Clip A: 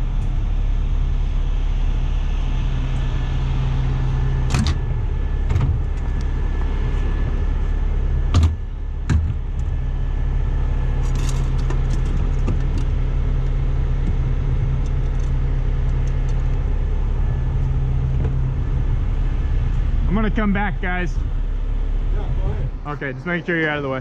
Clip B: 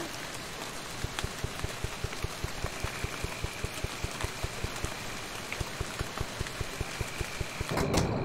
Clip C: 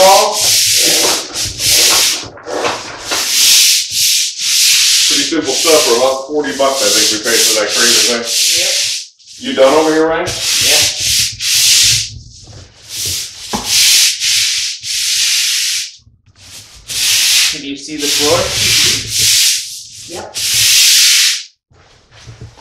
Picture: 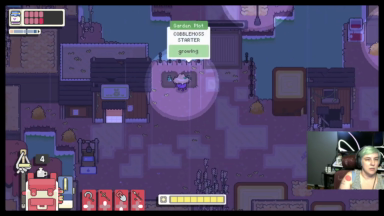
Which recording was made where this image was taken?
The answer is B